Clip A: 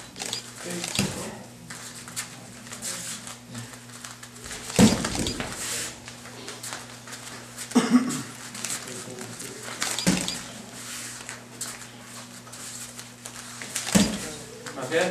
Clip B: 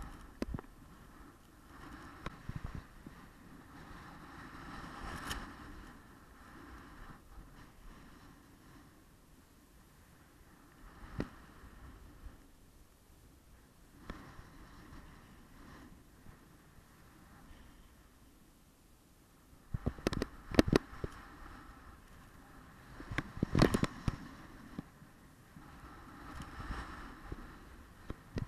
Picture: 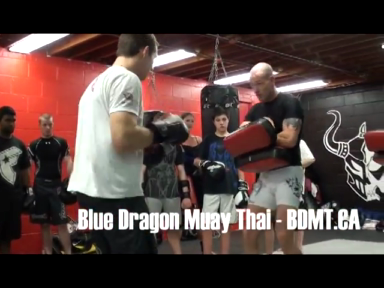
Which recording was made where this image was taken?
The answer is A